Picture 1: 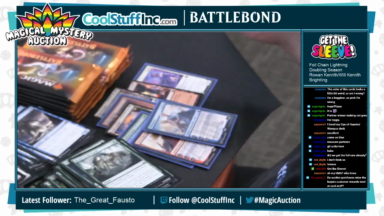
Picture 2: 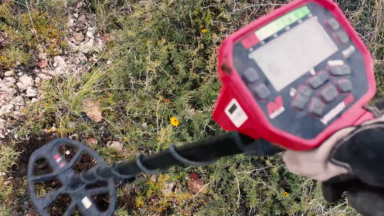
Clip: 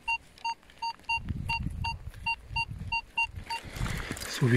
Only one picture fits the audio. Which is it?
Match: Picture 2